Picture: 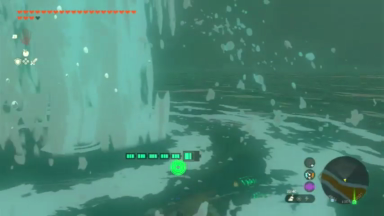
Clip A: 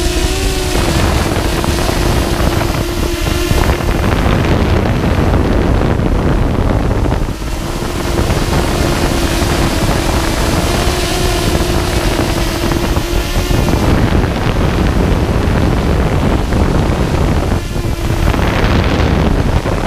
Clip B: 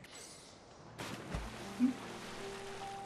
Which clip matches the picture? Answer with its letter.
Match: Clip B